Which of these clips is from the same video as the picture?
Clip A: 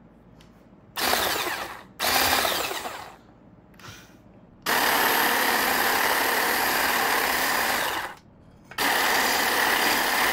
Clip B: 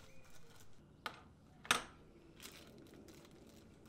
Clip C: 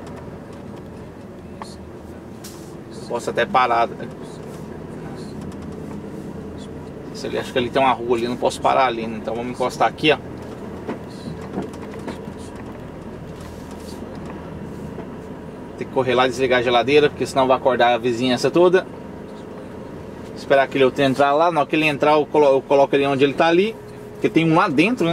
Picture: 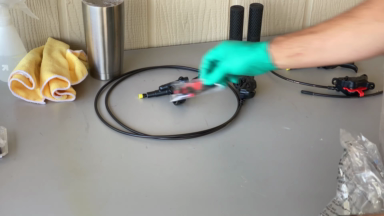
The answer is B